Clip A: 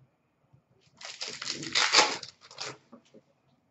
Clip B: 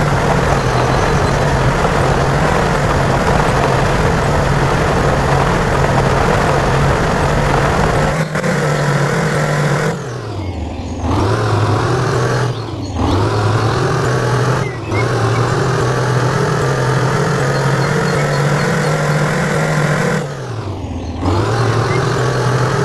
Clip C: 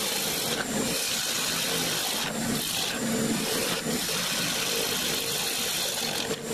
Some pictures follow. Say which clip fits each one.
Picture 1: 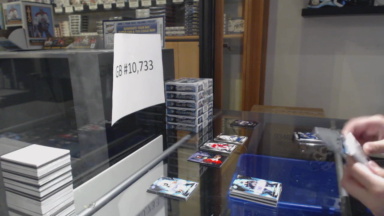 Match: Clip A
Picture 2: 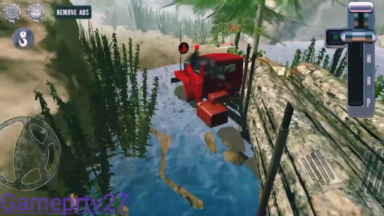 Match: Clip B